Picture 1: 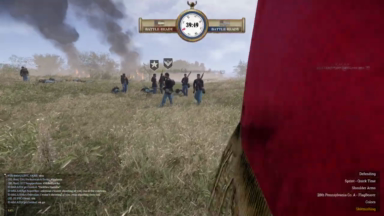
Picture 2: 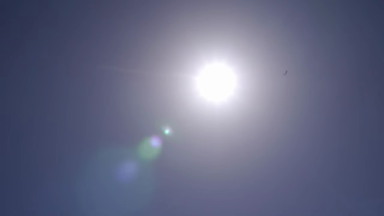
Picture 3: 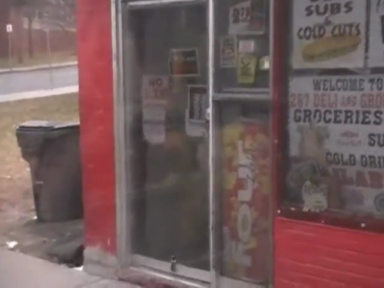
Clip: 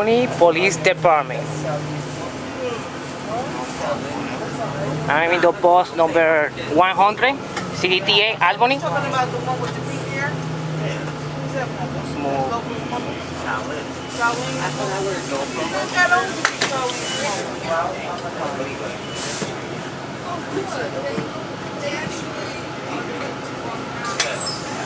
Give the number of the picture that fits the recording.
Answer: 3